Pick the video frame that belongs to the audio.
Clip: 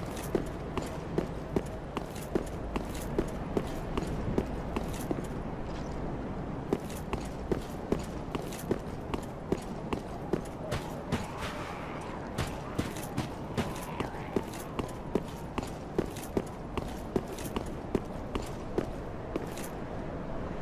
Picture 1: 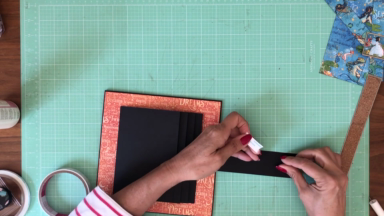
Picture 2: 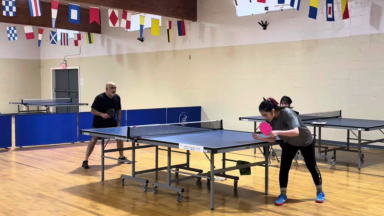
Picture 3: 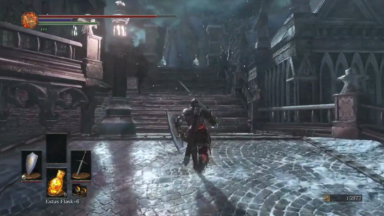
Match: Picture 3